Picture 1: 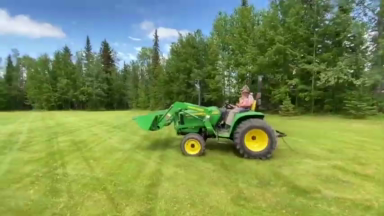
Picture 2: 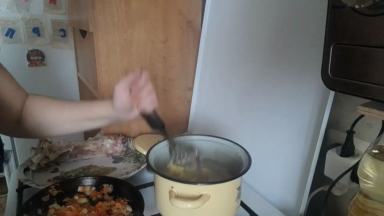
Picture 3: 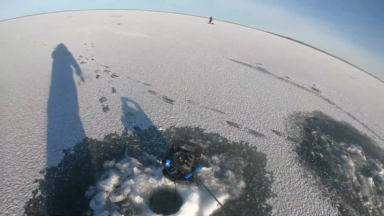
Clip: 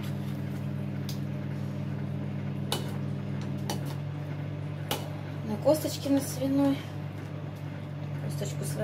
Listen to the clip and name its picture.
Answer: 2